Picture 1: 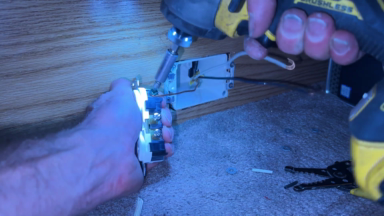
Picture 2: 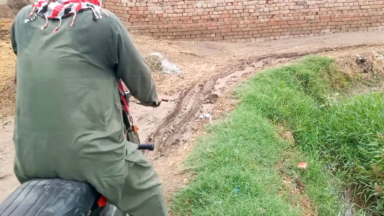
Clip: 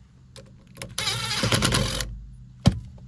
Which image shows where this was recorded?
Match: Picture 1